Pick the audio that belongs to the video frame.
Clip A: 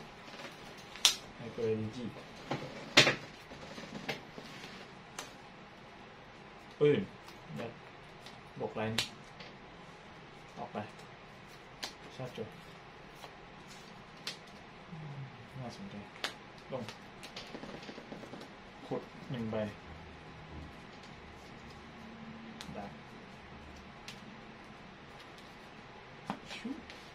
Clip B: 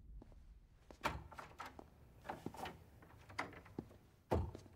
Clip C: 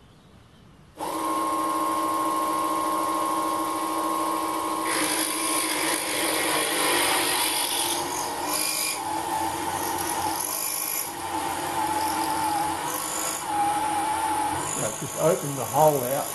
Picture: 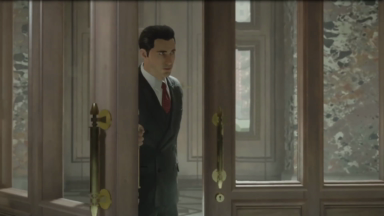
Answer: B